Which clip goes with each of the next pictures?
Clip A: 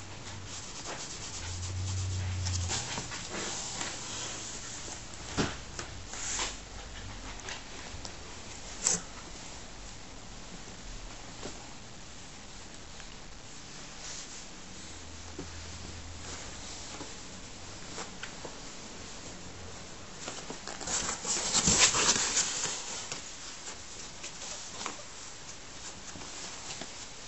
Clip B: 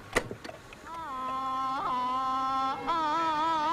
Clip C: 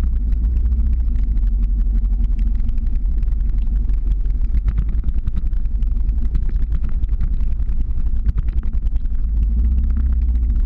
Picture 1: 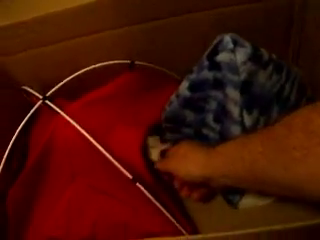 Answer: A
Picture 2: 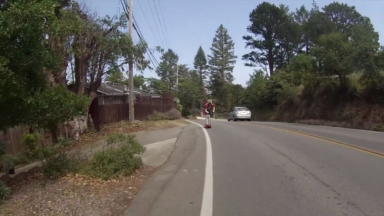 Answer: C